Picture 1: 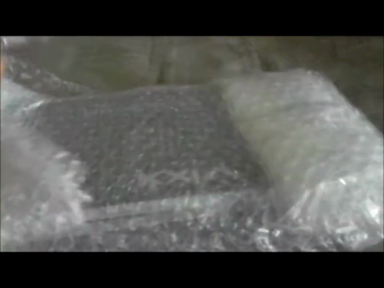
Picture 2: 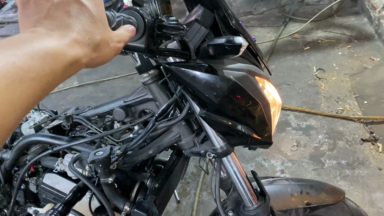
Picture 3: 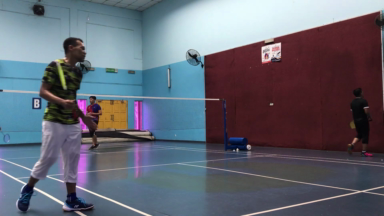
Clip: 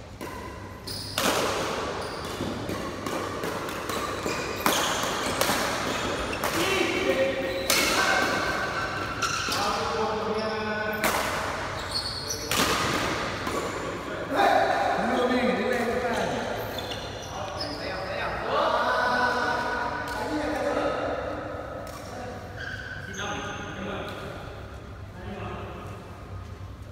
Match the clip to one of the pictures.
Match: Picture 3